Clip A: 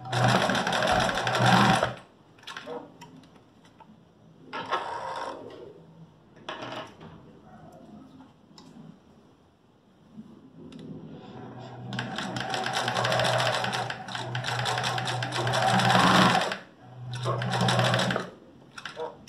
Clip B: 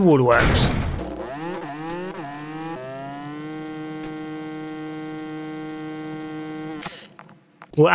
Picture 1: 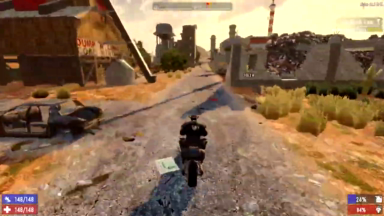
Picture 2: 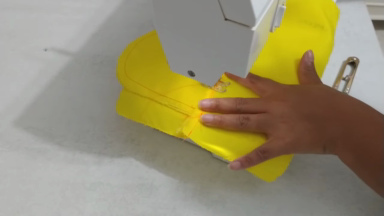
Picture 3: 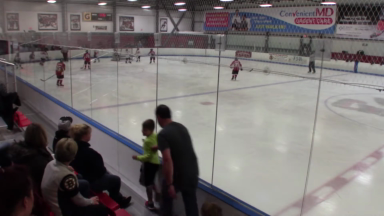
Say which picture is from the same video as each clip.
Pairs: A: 2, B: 1